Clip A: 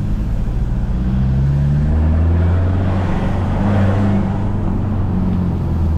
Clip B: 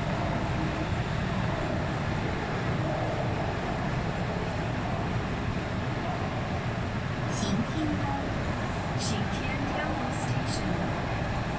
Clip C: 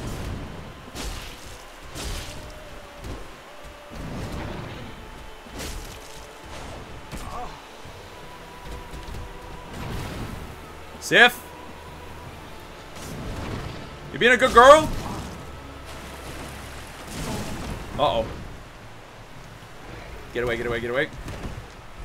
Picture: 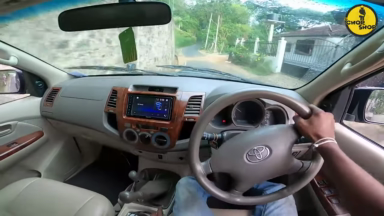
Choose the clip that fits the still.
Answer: A